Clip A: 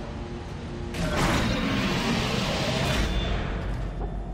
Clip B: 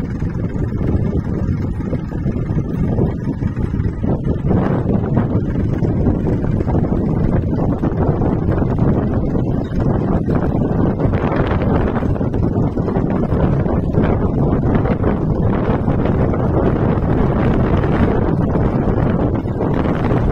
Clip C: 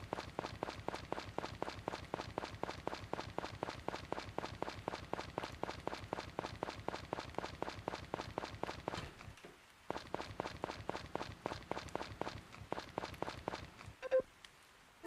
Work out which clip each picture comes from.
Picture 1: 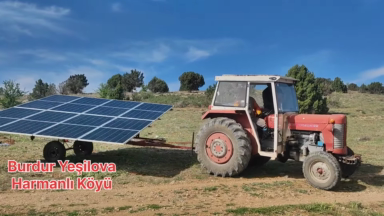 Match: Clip B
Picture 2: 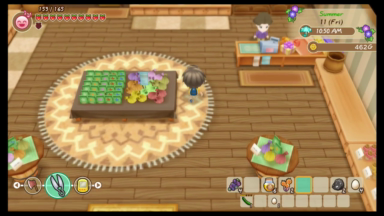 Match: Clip C